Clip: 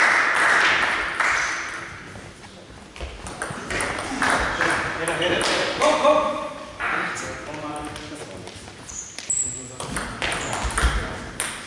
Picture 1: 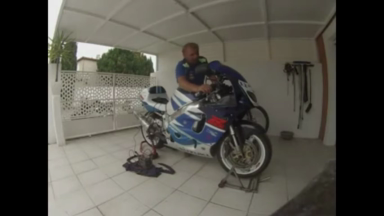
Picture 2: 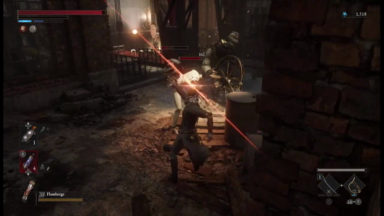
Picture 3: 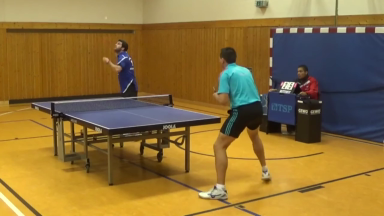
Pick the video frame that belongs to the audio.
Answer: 3